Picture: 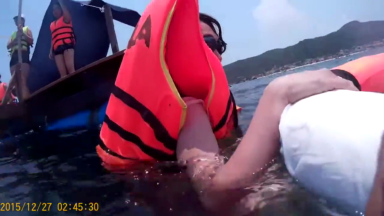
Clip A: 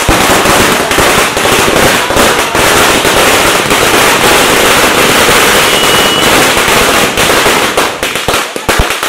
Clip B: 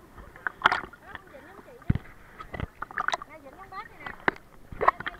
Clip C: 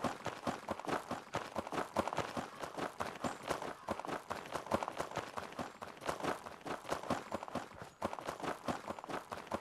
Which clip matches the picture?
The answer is B